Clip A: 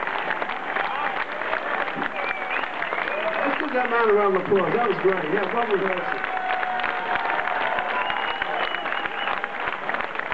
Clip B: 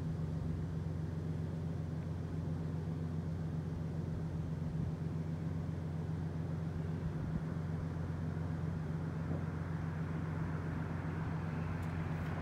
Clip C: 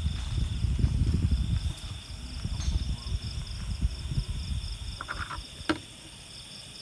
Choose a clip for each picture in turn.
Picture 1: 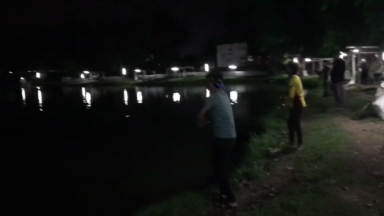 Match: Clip C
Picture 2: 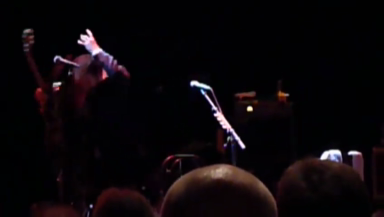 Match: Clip A